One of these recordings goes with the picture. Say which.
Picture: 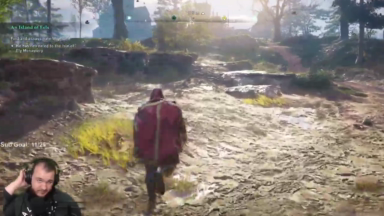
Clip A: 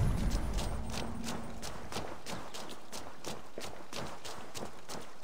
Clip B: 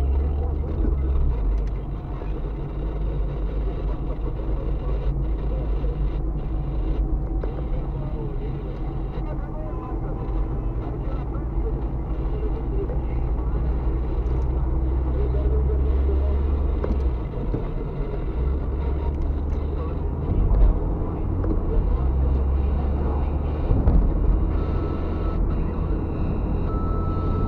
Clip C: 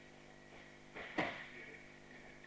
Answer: A